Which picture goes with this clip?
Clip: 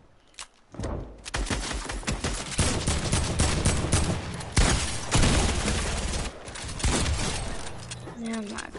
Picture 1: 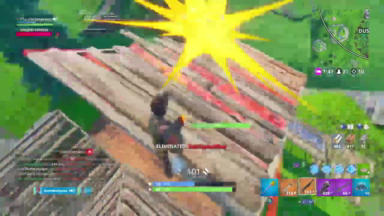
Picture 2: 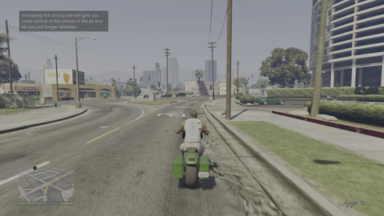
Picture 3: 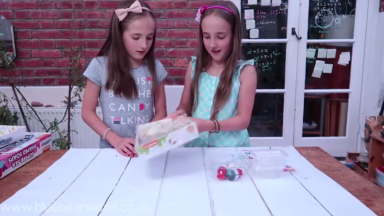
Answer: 1